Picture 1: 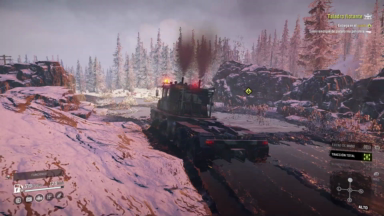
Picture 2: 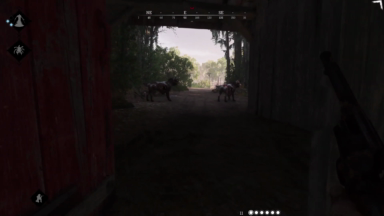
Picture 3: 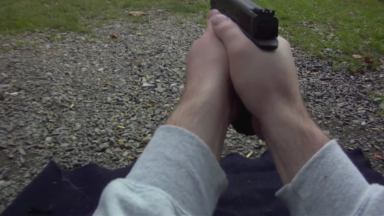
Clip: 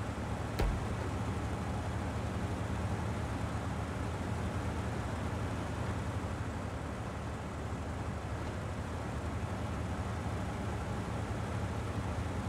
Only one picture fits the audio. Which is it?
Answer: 1